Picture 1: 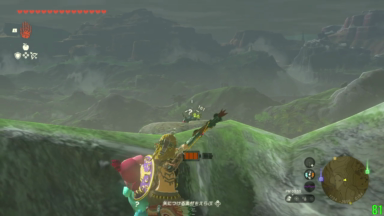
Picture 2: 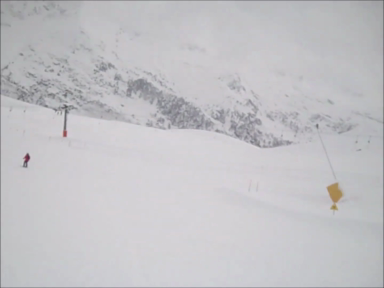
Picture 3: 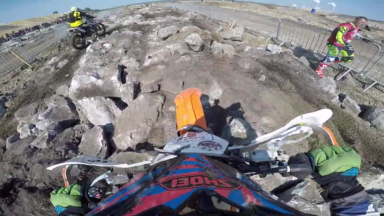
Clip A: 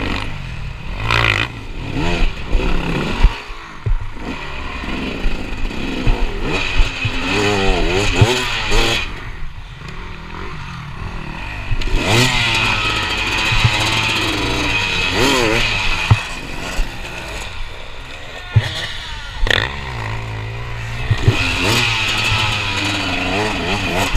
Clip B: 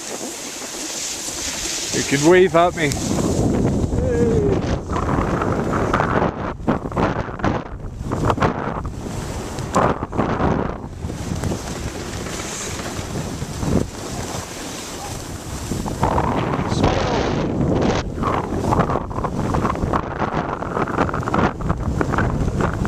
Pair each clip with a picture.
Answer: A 3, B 2